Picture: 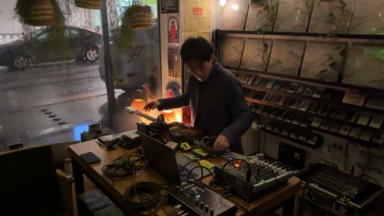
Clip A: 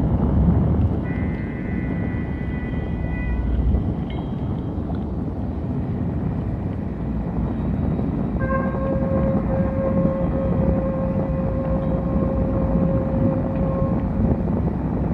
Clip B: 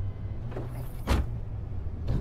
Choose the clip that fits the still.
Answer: A